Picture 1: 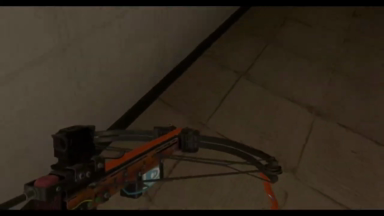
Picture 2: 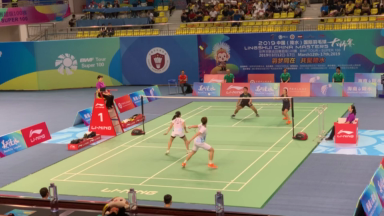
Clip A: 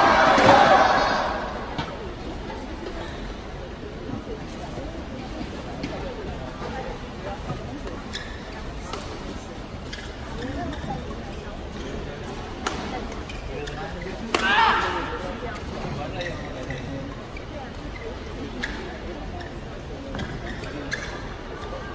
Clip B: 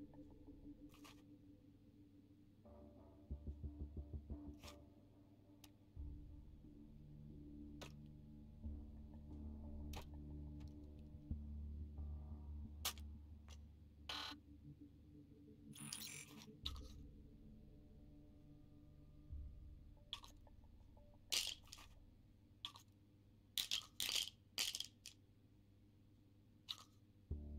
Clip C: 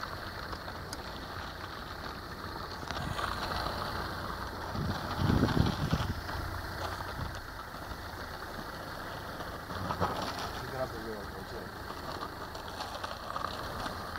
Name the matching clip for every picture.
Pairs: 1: B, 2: A